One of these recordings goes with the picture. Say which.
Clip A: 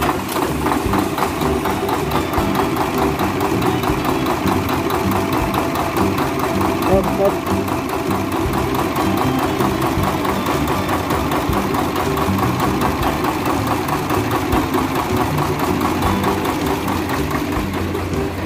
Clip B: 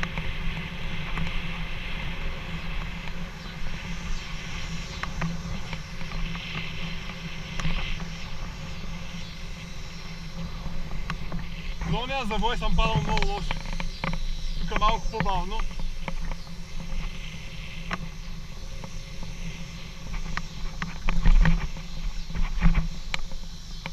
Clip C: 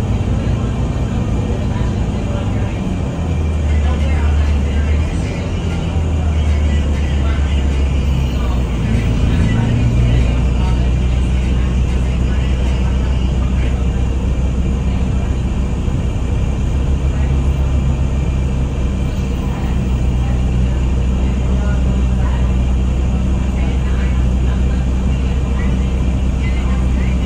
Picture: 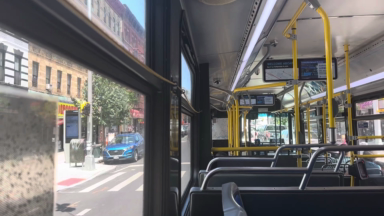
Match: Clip C